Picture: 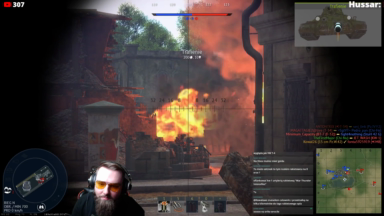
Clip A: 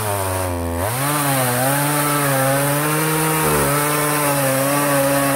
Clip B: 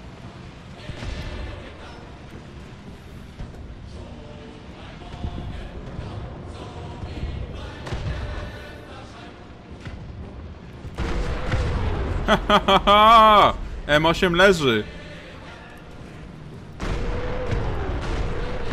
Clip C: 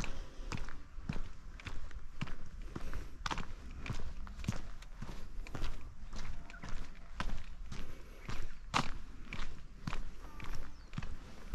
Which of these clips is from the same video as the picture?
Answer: B